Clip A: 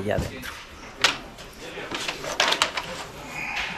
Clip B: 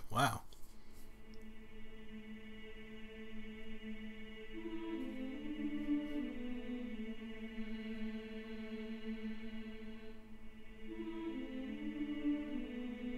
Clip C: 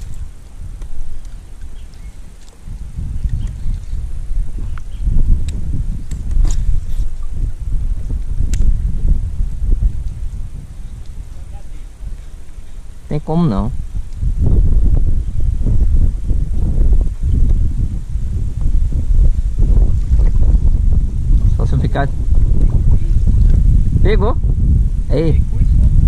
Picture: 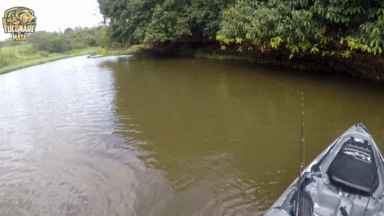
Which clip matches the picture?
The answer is C